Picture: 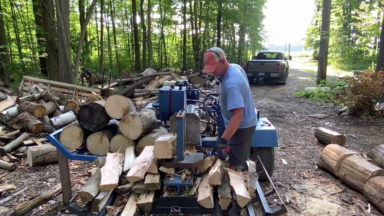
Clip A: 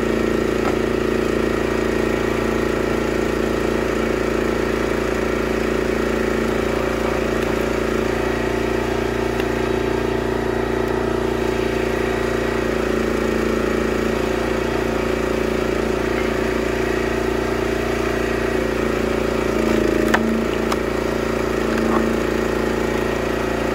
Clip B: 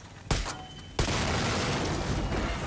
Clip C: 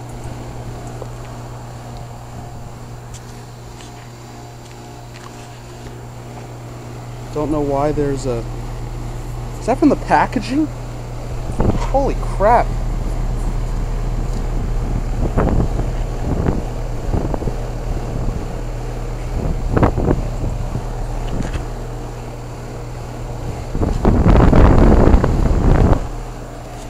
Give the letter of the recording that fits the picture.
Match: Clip A